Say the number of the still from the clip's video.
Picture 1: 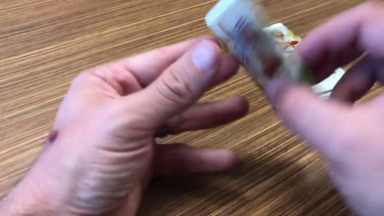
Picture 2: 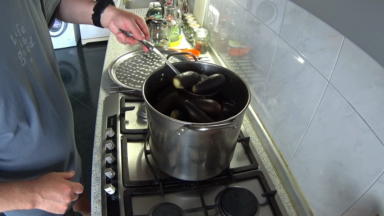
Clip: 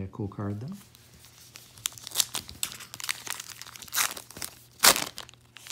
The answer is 1